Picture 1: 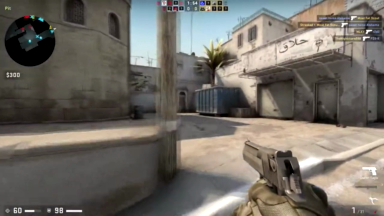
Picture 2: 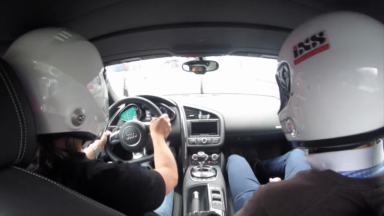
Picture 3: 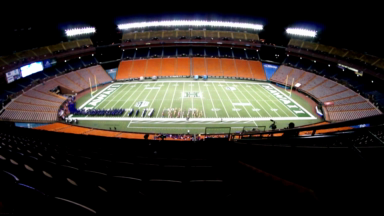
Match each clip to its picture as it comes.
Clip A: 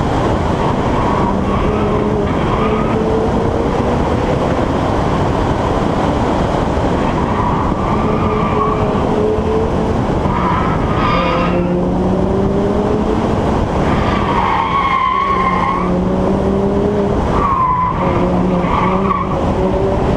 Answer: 2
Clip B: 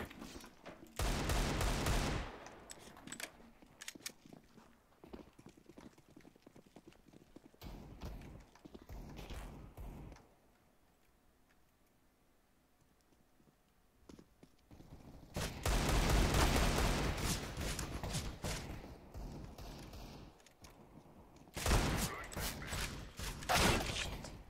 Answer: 1